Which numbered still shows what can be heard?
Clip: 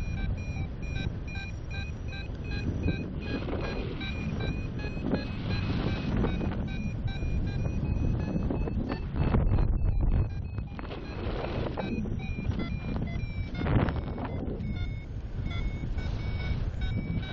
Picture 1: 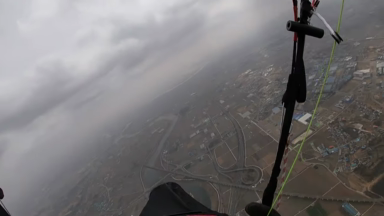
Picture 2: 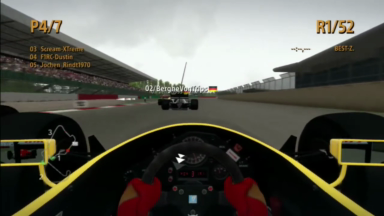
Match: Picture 1